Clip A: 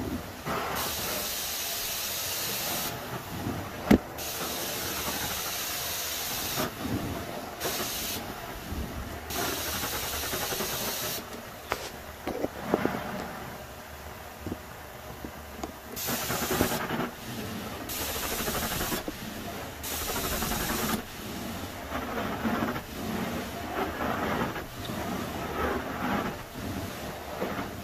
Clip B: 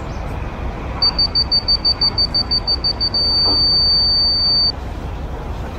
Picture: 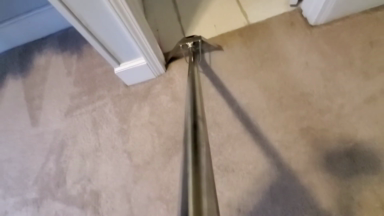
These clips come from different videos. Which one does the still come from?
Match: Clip A